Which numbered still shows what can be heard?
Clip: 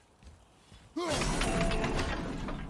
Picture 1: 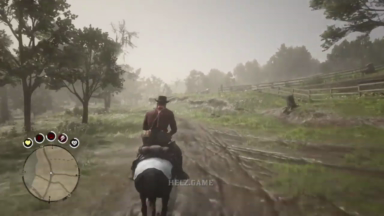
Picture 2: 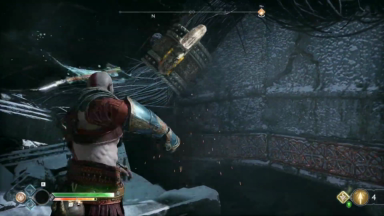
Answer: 2